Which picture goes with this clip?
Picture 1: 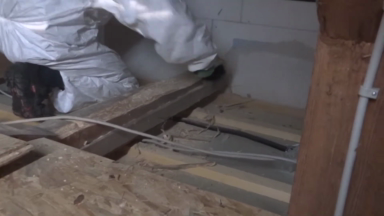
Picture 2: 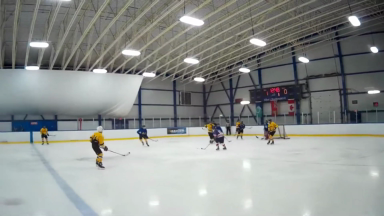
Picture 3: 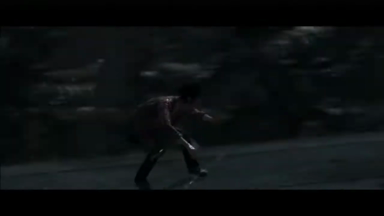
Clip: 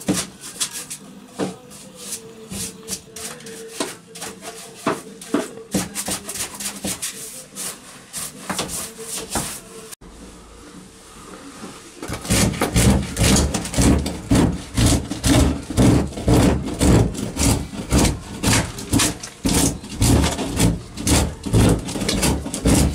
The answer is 1